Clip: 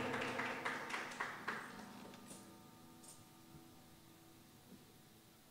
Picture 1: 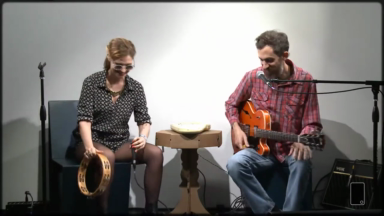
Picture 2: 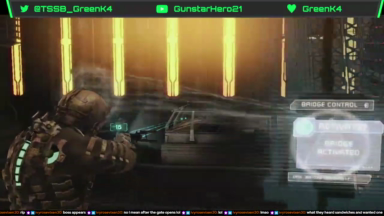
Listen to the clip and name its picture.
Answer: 1